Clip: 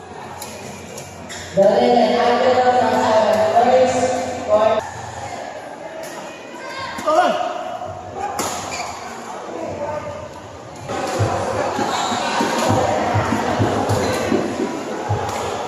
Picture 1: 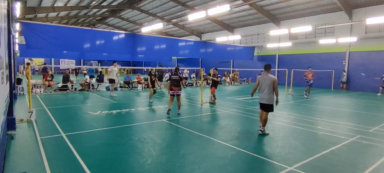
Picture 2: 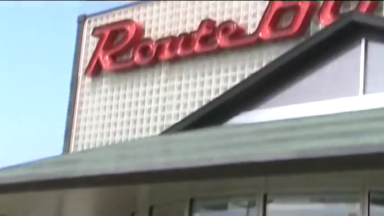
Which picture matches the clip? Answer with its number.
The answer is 1